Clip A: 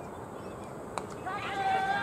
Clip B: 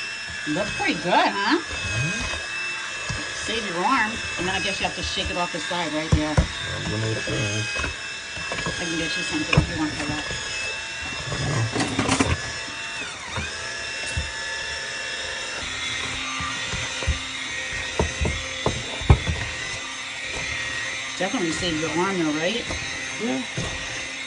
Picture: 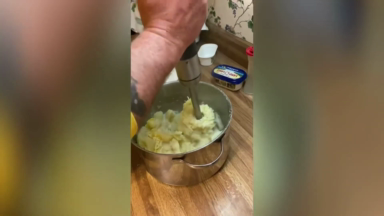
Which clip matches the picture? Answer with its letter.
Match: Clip B